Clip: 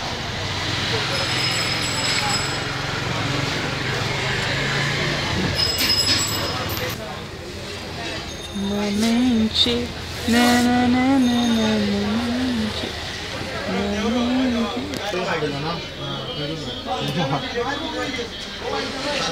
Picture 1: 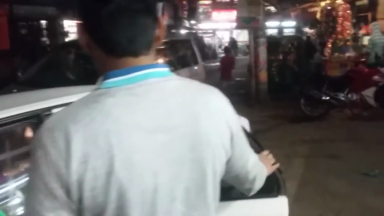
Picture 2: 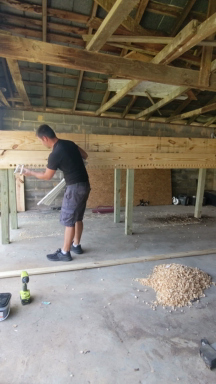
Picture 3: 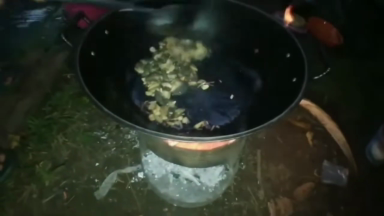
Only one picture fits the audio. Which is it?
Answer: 1